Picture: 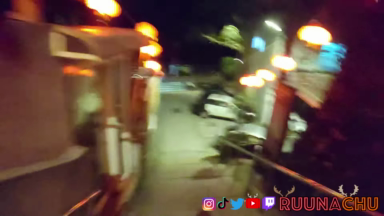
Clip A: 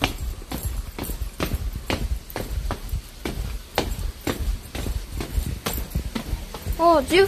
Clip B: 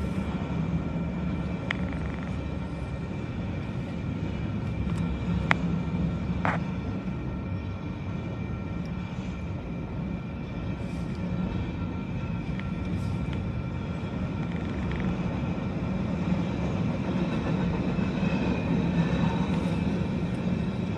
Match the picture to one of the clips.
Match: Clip A